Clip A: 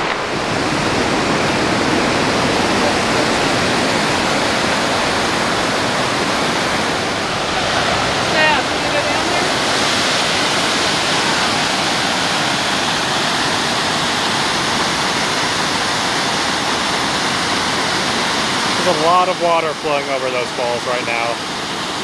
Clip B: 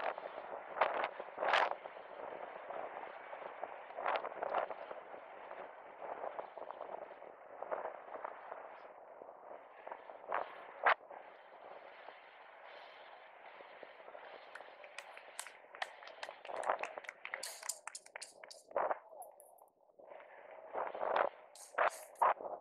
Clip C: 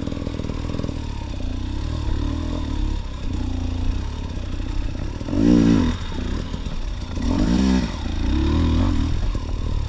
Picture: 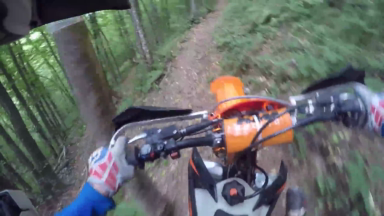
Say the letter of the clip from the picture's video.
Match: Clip C